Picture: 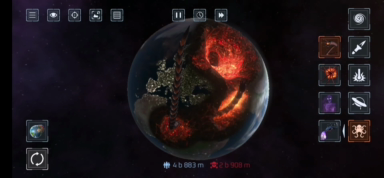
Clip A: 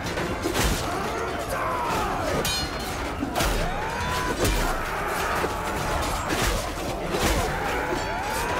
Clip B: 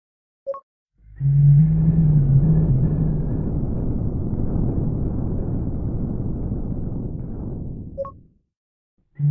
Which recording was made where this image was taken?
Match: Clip B